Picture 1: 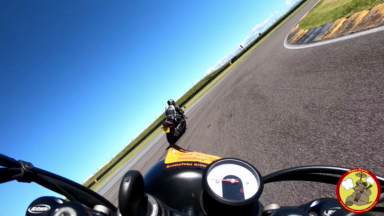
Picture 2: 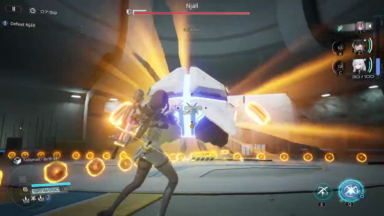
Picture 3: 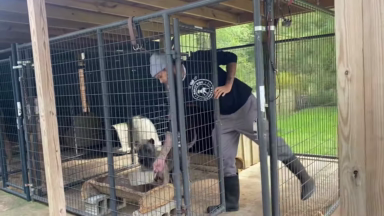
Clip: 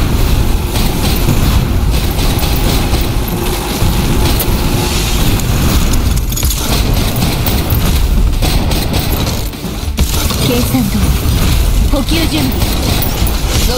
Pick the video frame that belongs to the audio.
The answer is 2